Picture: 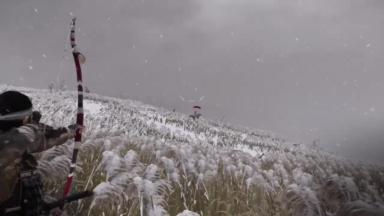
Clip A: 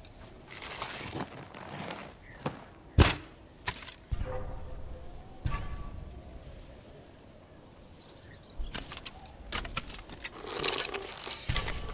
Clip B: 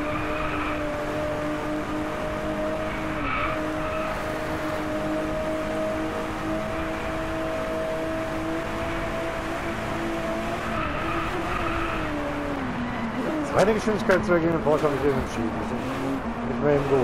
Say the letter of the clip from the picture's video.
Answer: A